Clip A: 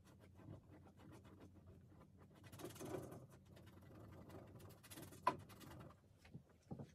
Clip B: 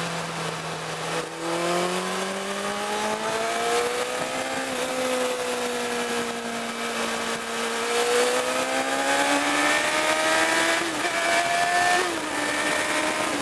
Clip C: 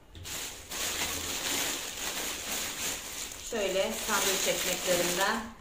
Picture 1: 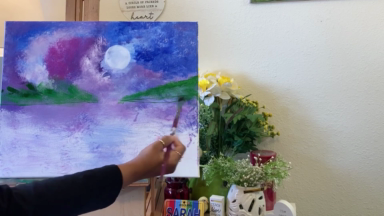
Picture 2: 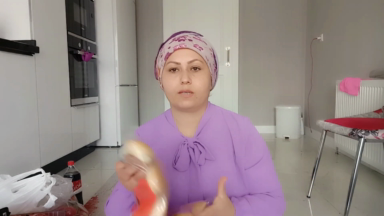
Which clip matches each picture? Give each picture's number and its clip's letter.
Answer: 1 A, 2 C